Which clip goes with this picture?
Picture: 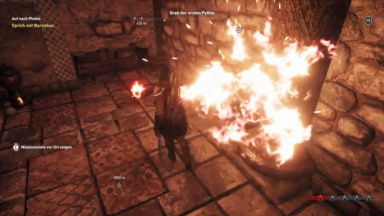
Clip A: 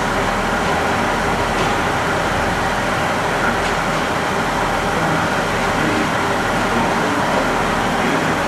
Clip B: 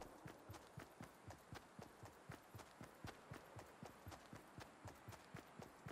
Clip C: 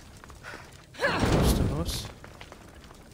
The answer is C